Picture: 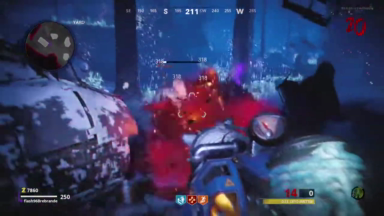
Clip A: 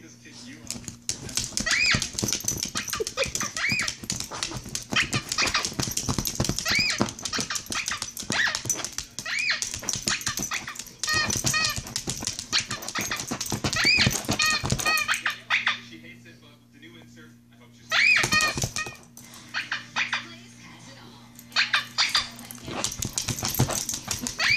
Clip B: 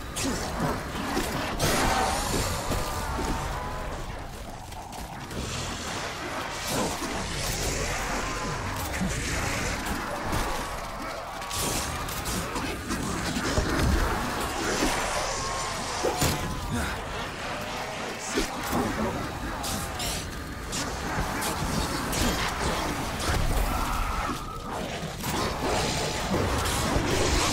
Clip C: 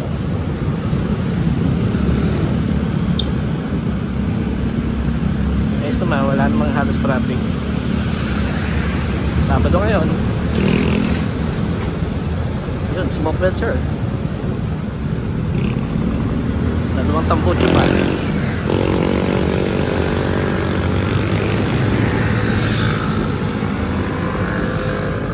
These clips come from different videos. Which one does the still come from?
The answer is B